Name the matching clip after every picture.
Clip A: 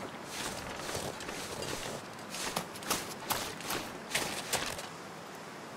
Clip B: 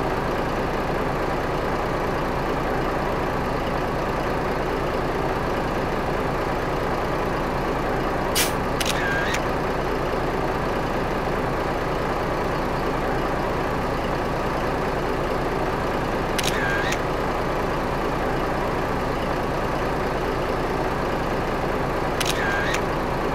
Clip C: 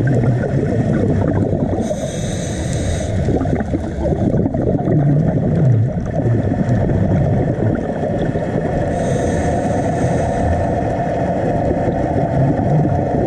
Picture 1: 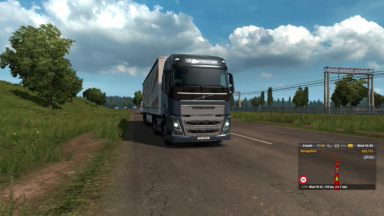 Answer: B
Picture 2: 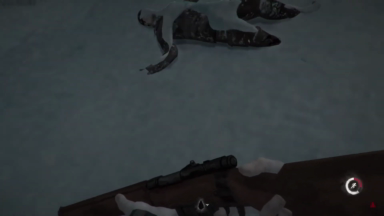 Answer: A